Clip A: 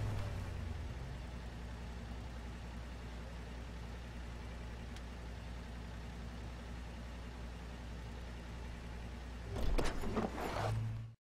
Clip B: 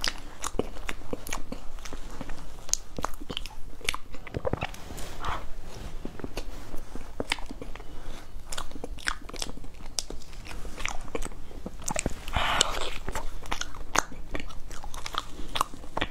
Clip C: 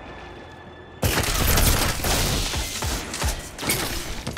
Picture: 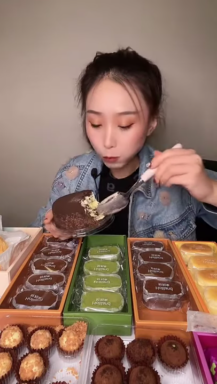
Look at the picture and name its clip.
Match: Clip B